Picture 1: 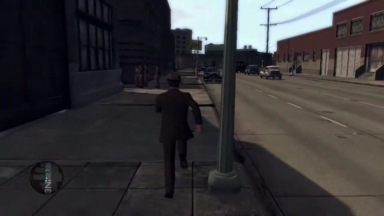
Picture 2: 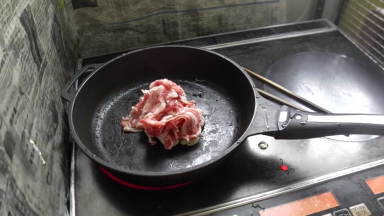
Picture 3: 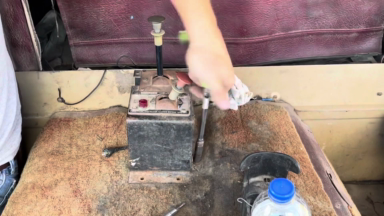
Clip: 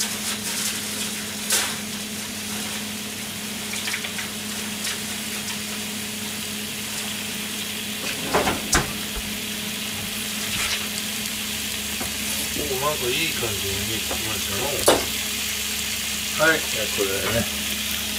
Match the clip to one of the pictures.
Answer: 2